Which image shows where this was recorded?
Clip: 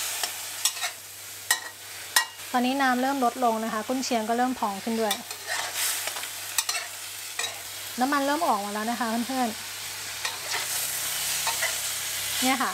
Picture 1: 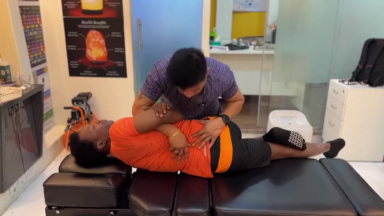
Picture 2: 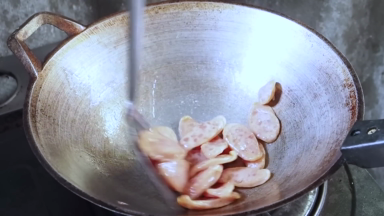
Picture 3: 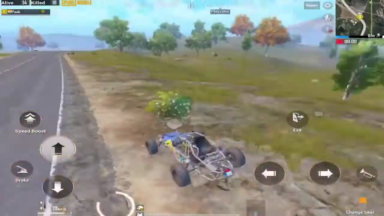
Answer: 2